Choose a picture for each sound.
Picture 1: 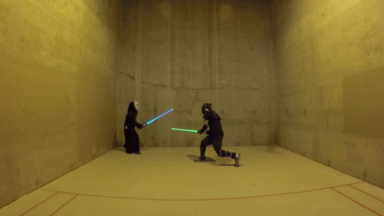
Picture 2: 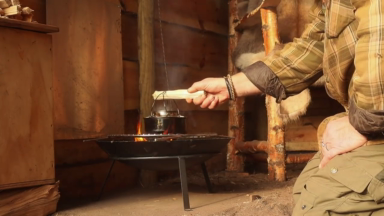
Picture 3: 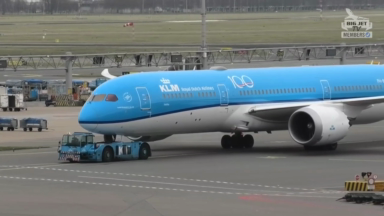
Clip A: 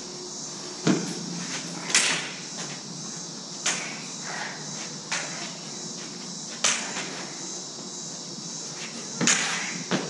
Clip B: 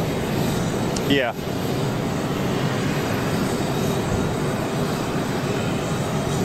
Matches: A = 1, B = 3